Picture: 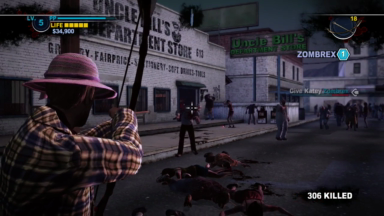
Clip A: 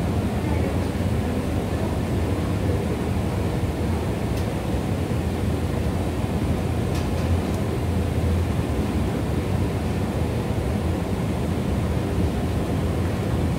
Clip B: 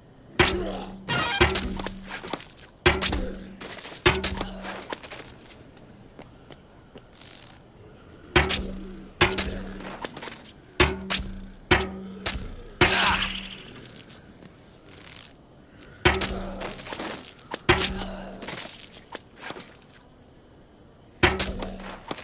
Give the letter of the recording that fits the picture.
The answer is B